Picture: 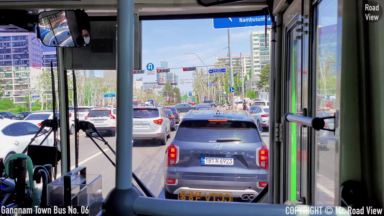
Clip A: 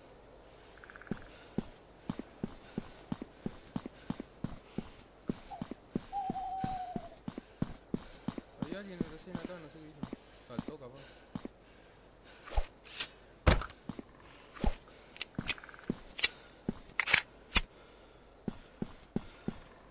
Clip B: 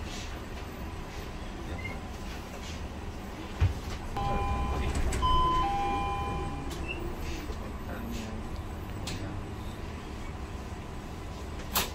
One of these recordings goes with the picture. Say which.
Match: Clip B